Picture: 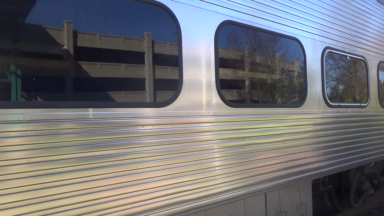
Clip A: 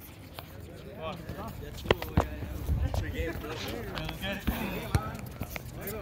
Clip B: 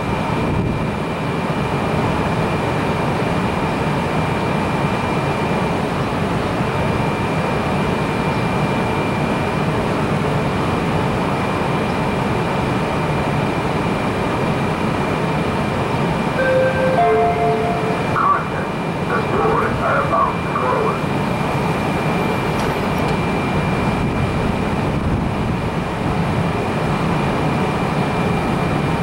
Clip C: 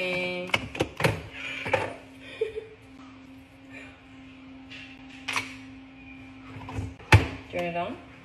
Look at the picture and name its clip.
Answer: B